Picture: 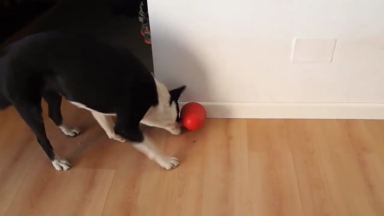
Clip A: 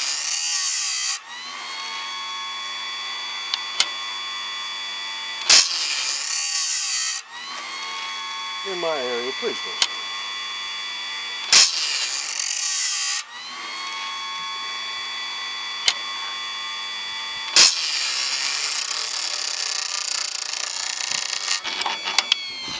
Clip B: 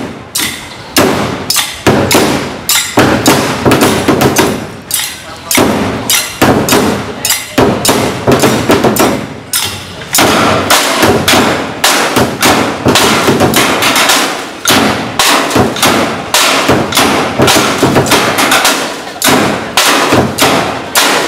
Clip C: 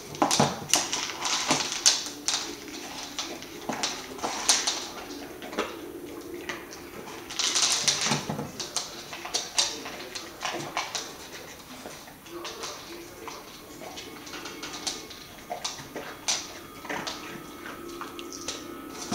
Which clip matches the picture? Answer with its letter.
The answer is C